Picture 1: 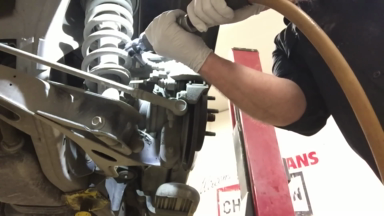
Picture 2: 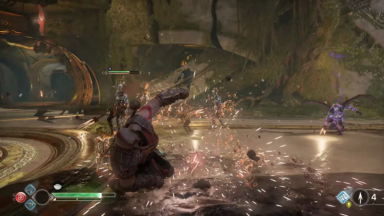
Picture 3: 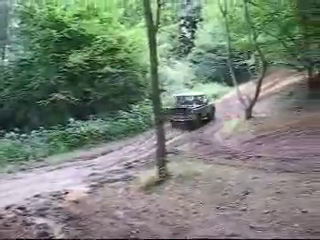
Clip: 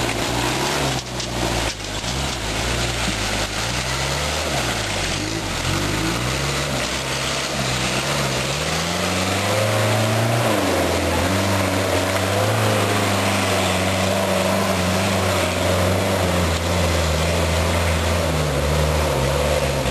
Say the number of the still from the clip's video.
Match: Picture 3